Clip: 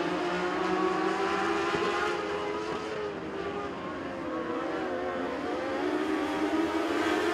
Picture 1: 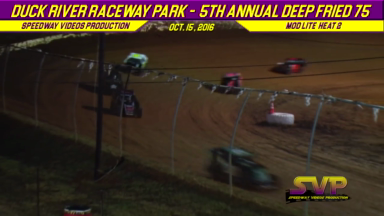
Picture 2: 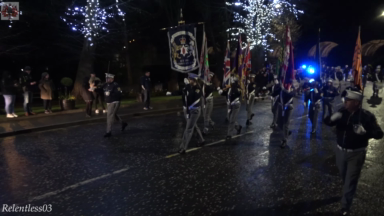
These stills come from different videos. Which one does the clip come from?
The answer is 1